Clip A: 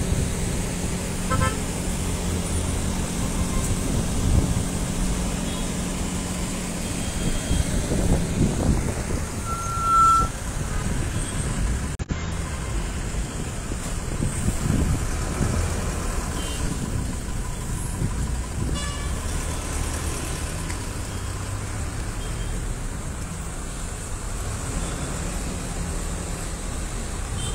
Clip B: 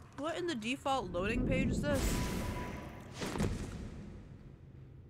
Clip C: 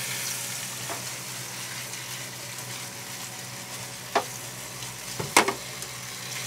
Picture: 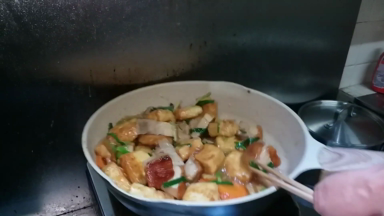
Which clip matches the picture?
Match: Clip C